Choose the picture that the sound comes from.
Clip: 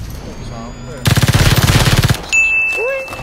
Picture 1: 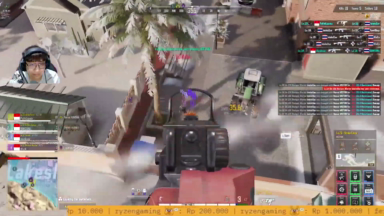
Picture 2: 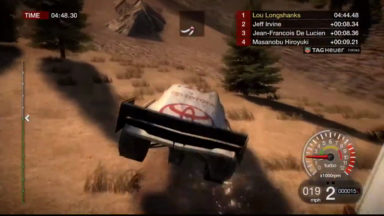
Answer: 1